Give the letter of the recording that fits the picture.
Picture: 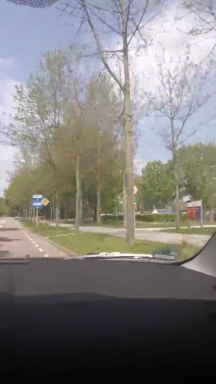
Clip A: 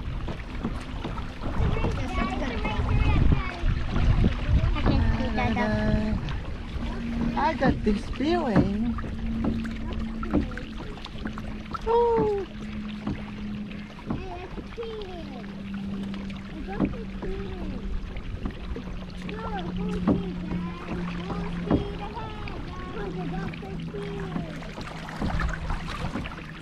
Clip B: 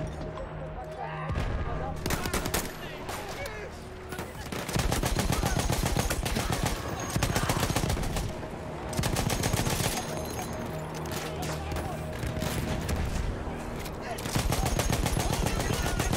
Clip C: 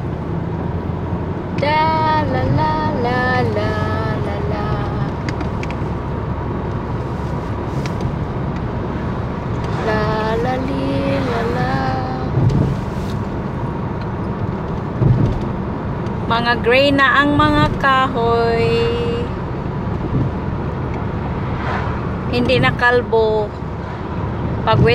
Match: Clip C